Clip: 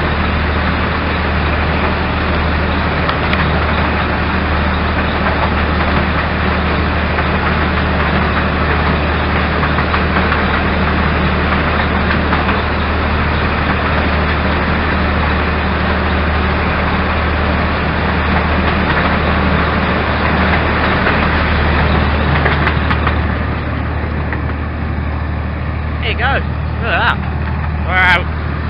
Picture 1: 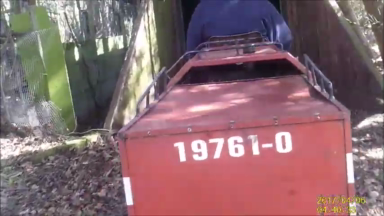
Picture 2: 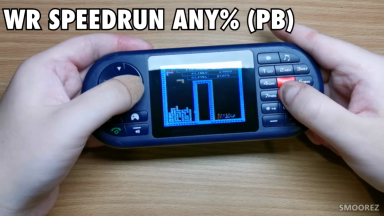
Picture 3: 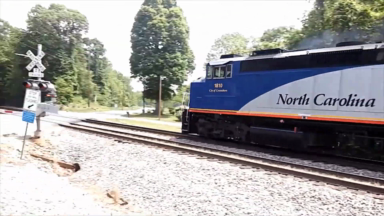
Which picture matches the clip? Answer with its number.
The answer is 1